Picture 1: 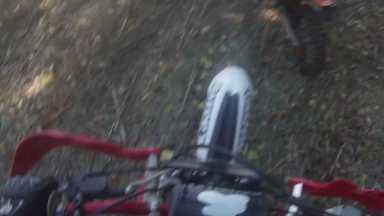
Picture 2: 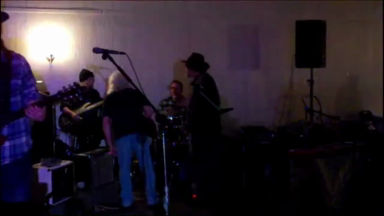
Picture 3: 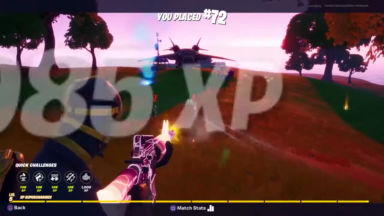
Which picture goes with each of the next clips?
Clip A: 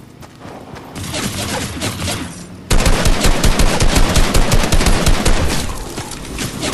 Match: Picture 3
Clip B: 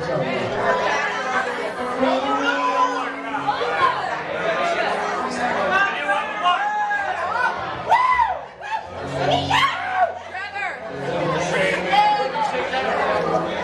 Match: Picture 2